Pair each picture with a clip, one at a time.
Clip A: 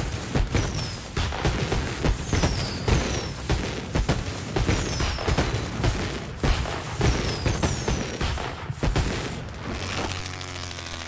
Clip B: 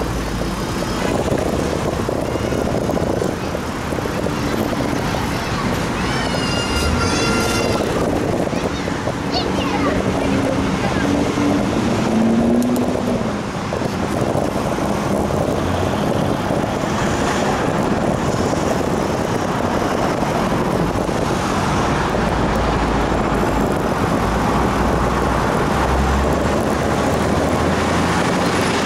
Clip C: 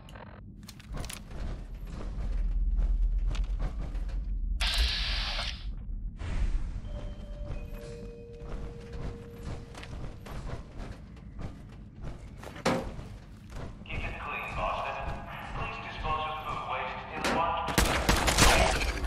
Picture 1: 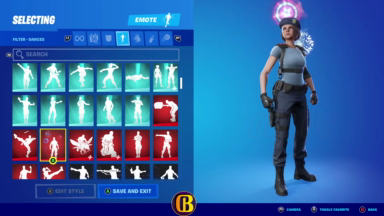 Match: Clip A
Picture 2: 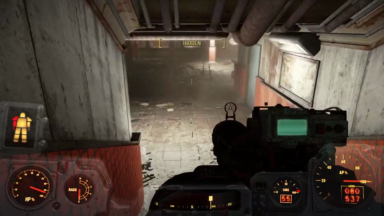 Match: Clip C